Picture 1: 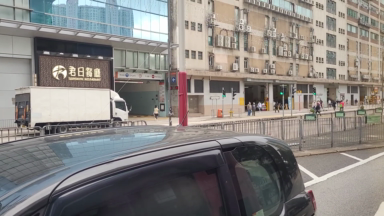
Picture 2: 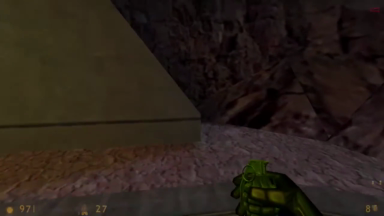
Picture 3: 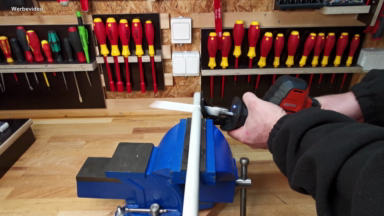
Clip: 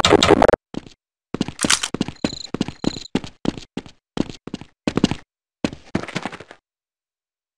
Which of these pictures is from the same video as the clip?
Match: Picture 2